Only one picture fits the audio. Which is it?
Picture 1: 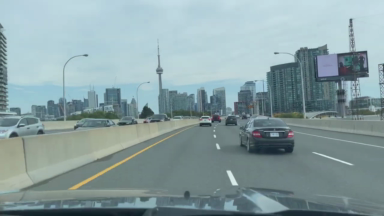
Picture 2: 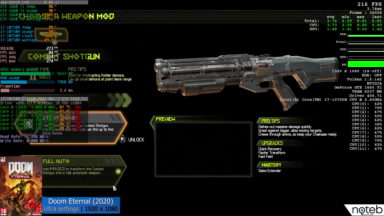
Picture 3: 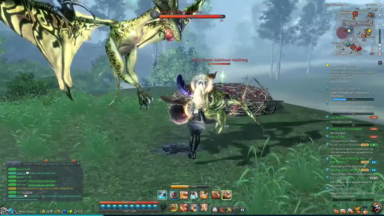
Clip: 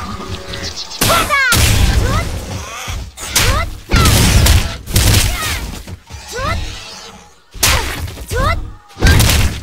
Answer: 3